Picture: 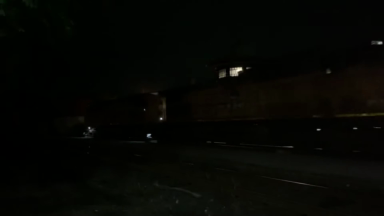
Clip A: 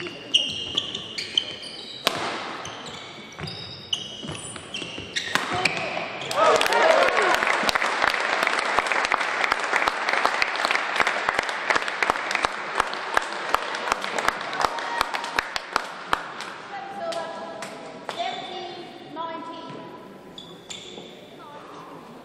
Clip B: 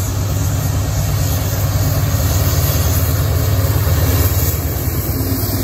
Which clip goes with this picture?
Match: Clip B